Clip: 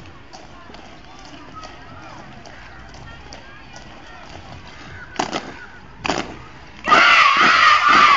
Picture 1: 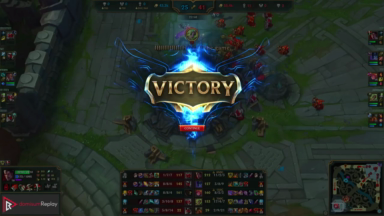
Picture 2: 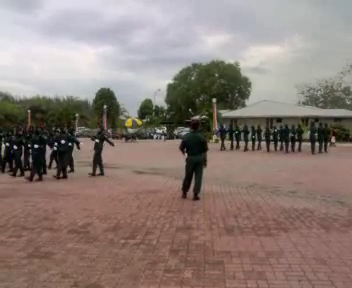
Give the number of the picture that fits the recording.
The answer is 2